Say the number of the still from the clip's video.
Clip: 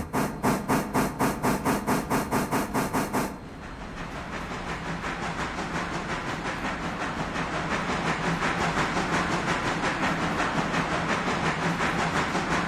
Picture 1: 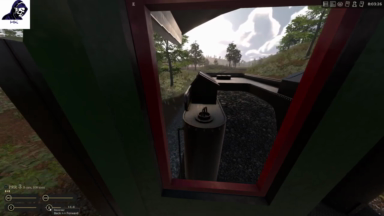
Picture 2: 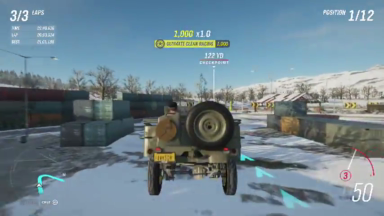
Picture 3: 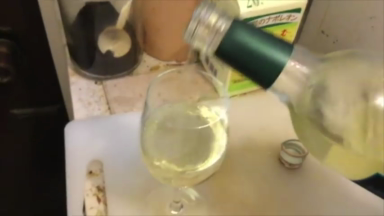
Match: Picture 1